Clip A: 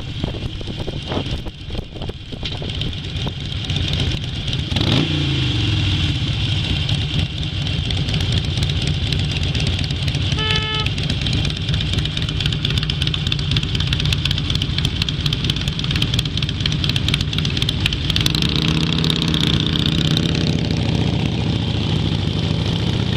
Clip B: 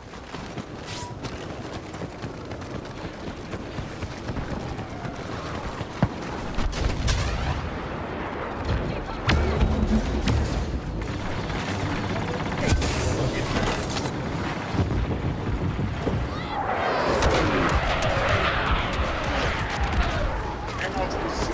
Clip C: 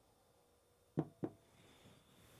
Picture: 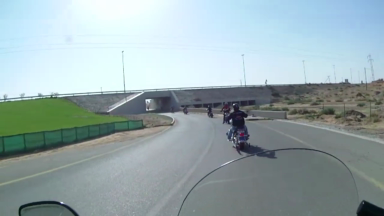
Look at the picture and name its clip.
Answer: A